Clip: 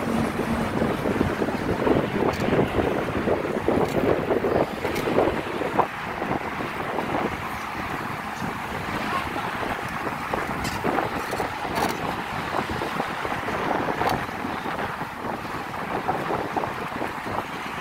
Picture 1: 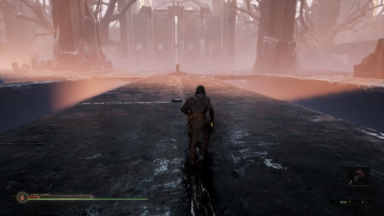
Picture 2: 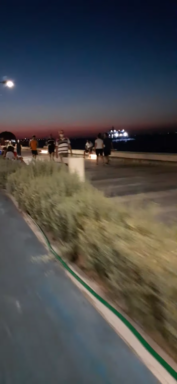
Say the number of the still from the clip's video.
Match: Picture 2